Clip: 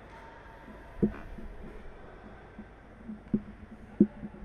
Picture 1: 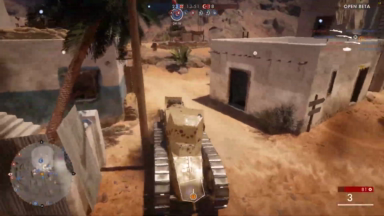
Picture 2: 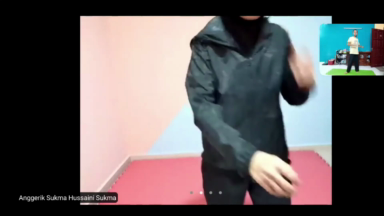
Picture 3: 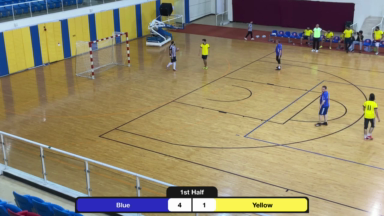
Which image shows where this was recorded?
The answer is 3